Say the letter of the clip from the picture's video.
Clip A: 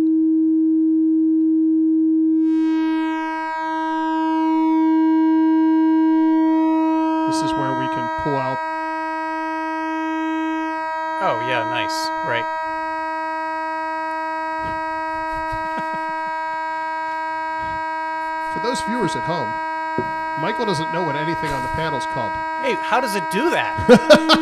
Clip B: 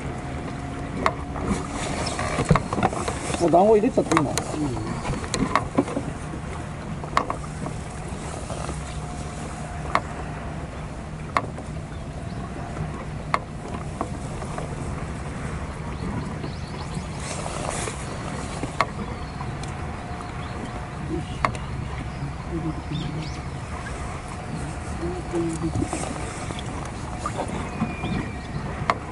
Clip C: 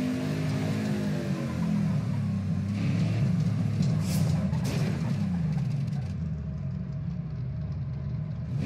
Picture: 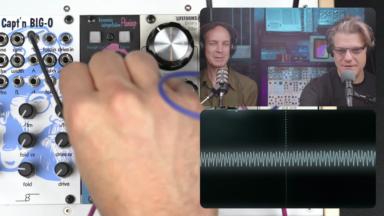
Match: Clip A